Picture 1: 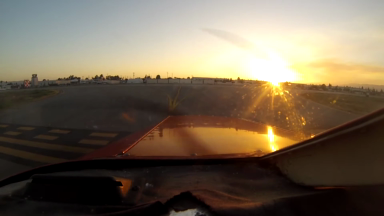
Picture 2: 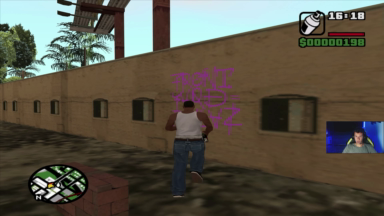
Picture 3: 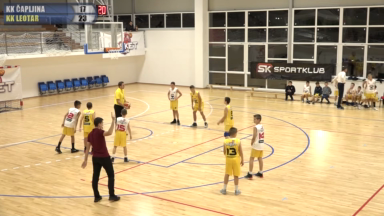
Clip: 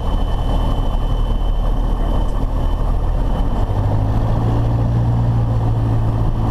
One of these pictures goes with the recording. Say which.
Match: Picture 1